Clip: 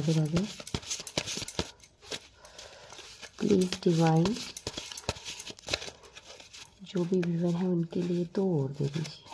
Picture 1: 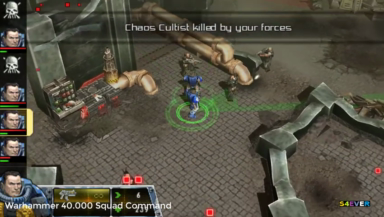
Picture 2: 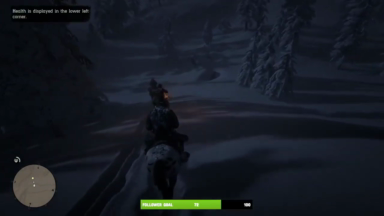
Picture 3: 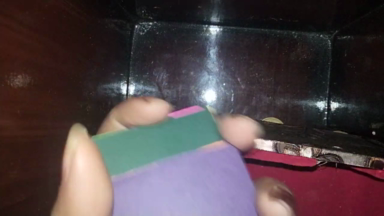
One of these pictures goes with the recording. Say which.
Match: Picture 3